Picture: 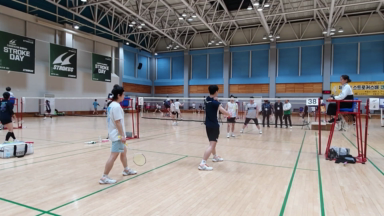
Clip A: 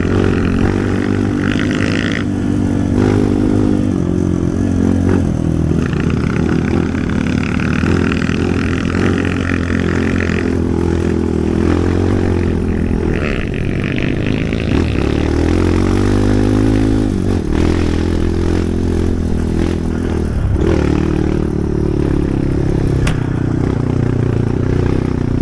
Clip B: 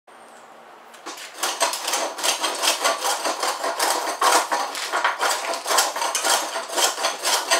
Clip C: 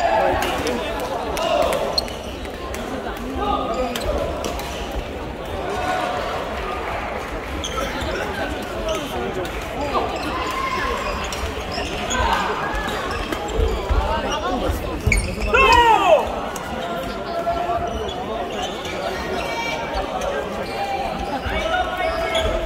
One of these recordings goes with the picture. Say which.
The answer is C